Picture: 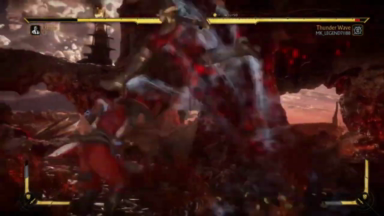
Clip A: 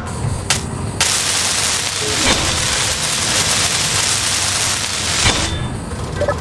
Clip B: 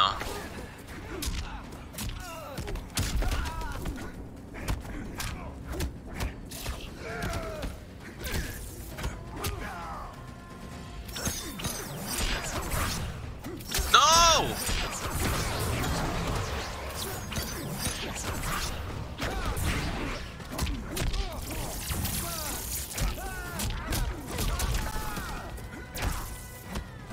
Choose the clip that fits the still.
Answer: B